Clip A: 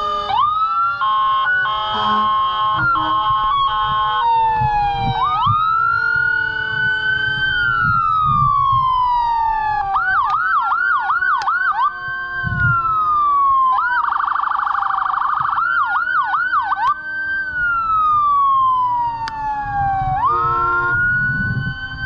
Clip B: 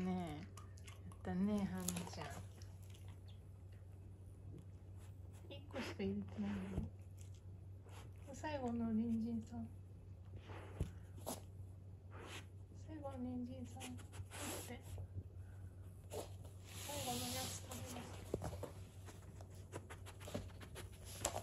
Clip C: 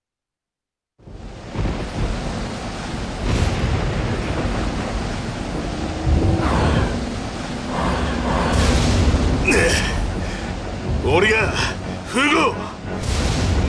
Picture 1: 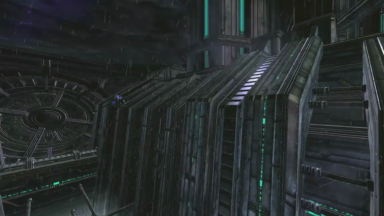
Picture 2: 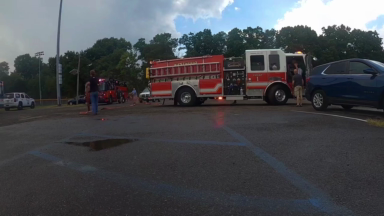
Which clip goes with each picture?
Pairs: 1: C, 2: A